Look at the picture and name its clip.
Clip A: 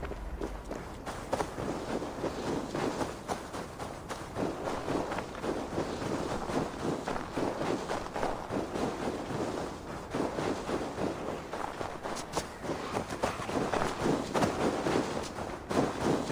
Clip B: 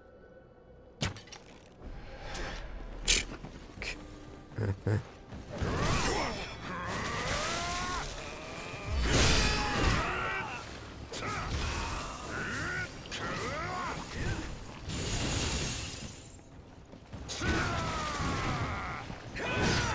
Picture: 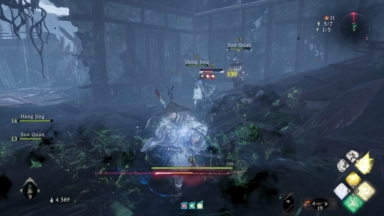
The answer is B